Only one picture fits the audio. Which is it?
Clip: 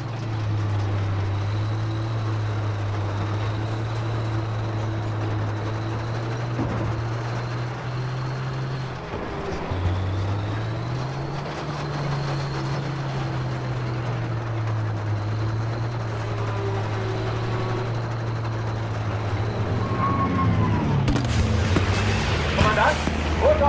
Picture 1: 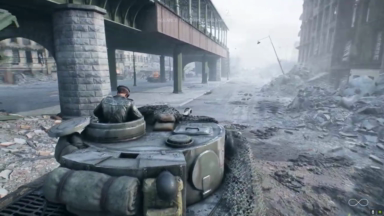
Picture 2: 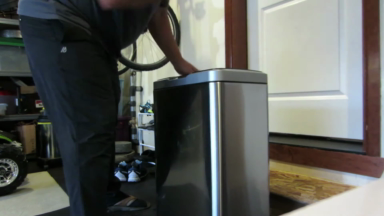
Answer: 1